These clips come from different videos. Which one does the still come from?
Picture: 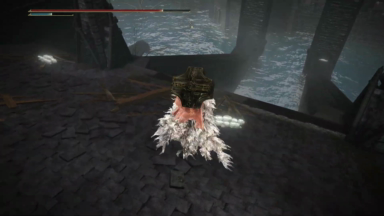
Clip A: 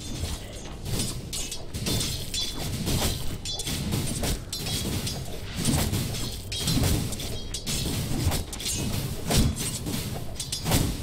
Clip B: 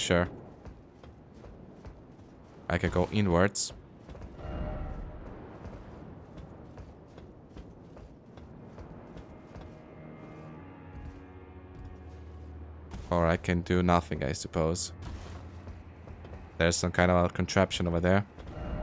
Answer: B